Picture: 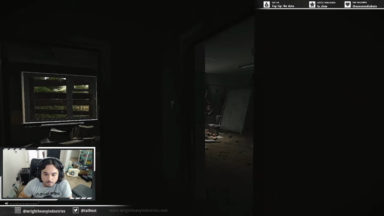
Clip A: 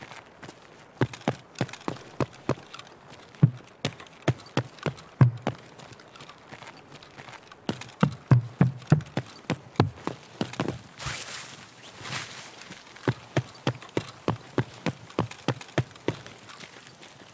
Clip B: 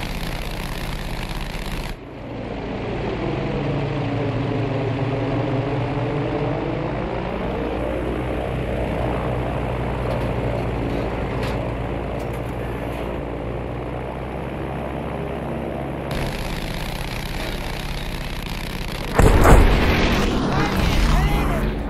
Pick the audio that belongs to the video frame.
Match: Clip A